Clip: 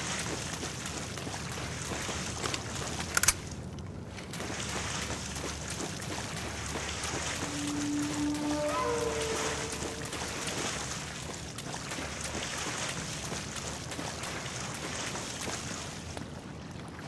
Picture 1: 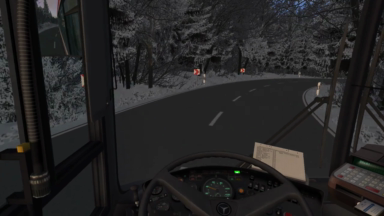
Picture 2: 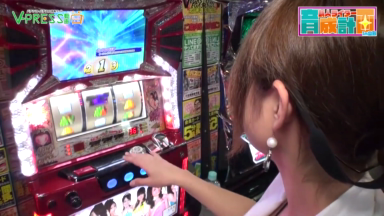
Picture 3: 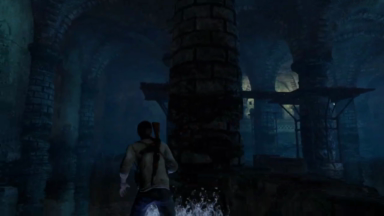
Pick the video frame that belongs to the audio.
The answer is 3